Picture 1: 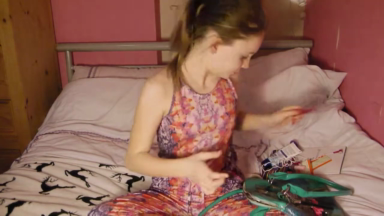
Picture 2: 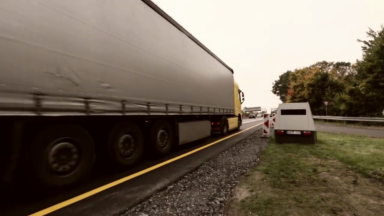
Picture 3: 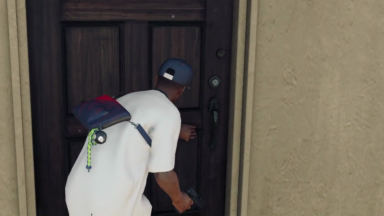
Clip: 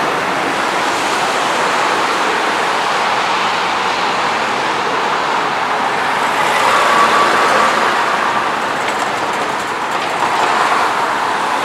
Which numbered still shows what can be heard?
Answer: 2